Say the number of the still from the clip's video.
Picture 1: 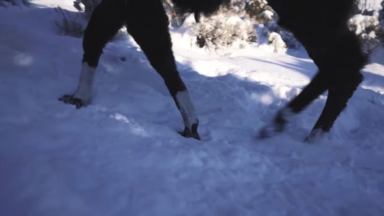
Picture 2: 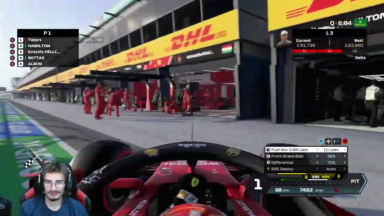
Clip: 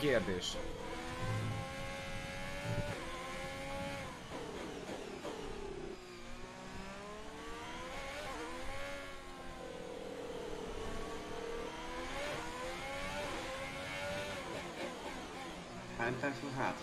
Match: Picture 2